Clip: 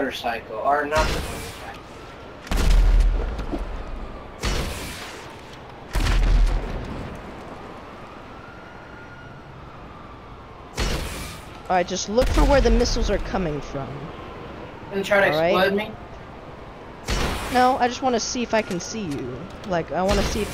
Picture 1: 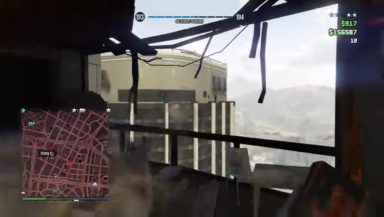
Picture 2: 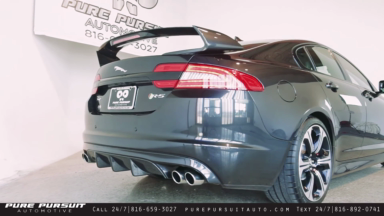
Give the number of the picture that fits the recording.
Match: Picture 1